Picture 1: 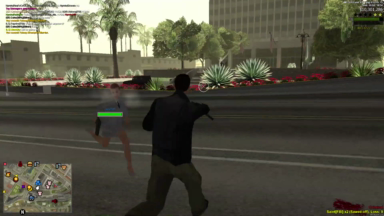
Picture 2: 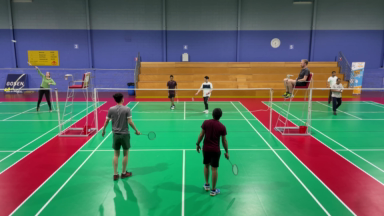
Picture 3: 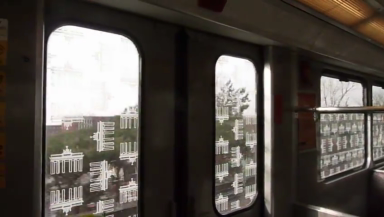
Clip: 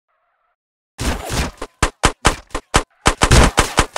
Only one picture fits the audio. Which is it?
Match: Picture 1